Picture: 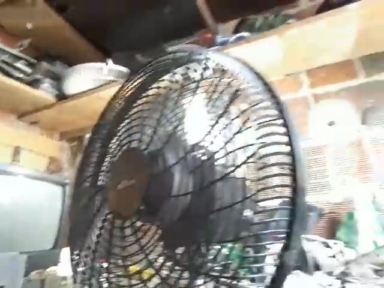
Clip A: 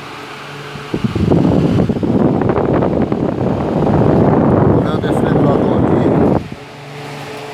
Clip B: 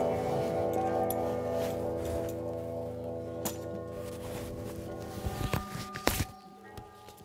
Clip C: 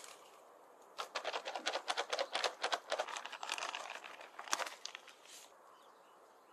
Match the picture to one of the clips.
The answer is A